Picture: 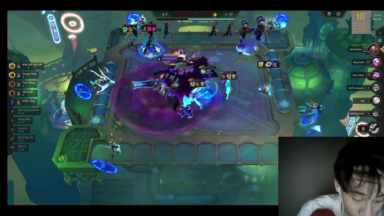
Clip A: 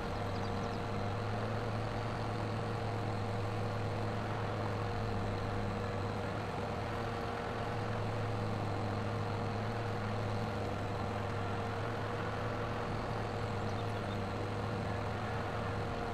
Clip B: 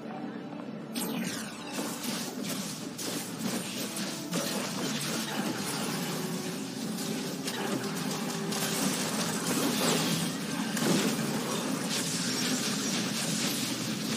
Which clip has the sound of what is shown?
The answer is B